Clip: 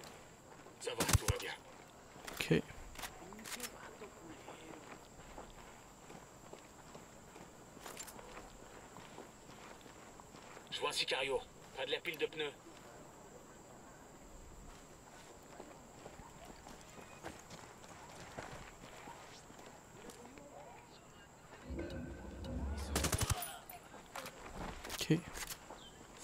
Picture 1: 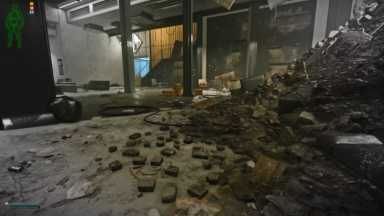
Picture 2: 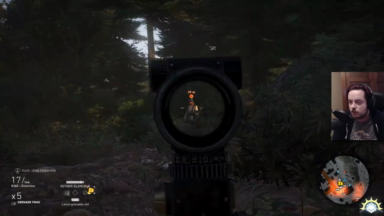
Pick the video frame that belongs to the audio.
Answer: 2